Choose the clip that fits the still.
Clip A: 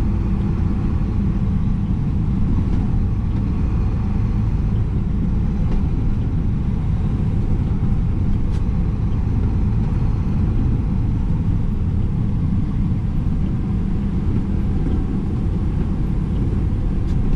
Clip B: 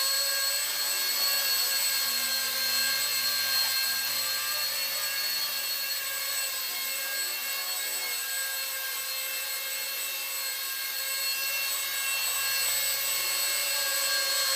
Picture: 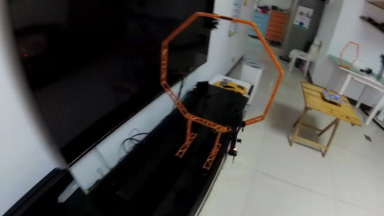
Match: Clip B